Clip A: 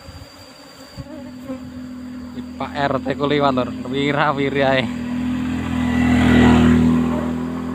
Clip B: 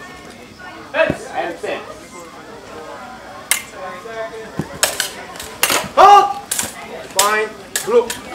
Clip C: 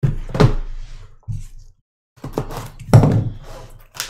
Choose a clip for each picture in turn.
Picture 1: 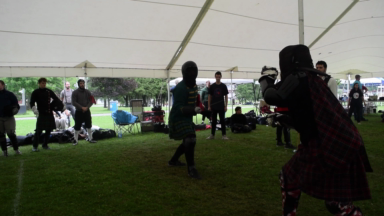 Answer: B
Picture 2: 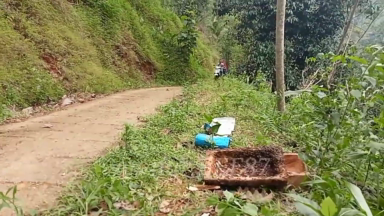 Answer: A